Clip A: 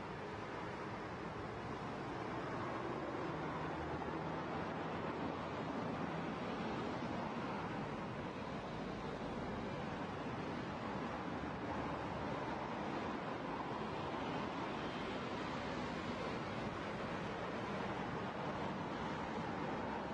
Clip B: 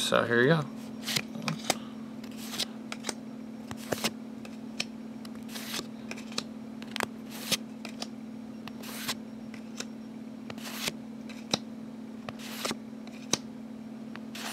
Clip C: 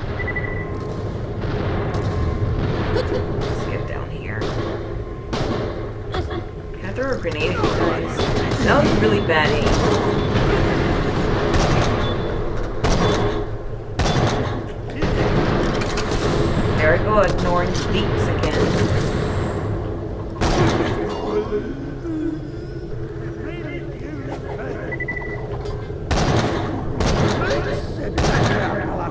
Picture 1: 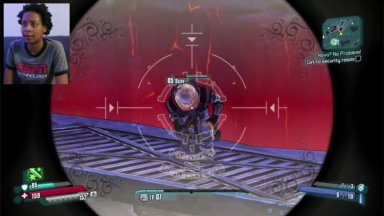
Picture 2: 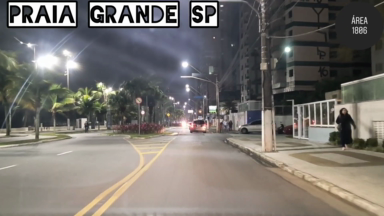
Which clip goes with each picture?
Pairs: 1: C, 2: A